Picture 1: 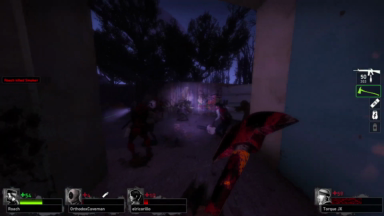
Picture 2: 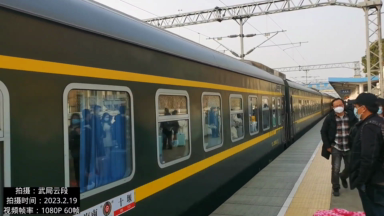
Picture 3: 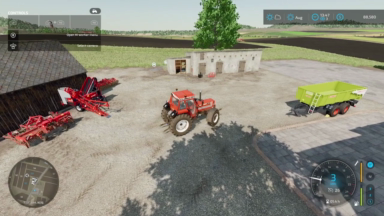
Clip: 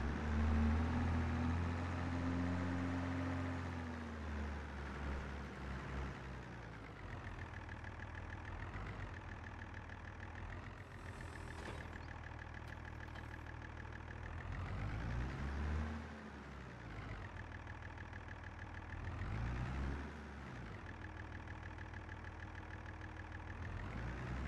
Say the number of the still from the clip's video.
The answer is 3